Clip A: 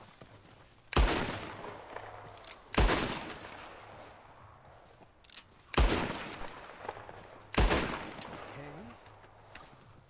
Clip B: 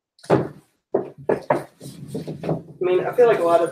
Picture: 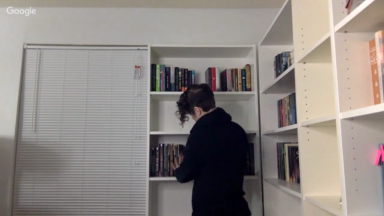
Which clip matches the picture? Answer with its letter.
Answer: B